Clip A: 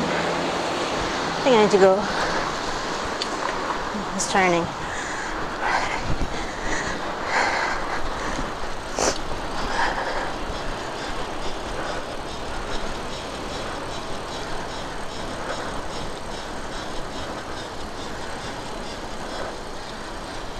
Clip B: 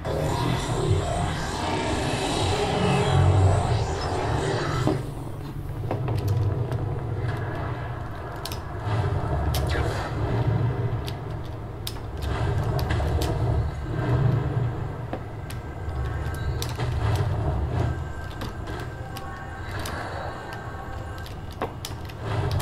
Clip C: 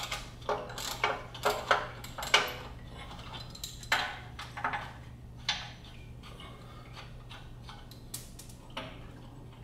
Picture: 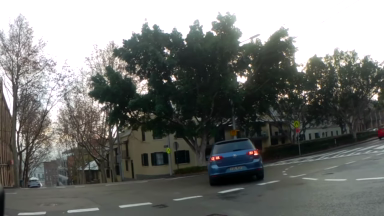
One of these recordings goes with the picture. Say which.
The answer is A